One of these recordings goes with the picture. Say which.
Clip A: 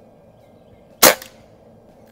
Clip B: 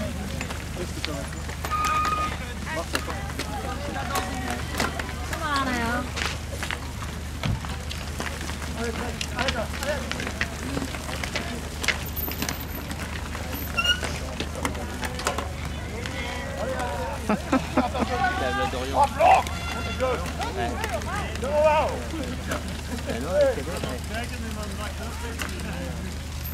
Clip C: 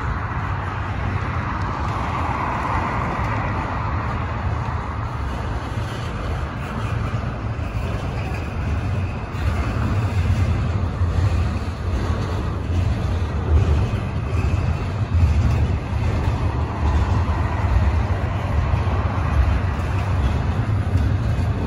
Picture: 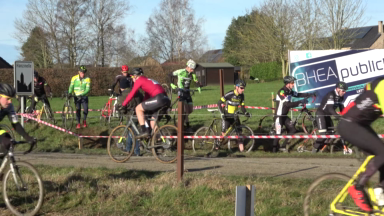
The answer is B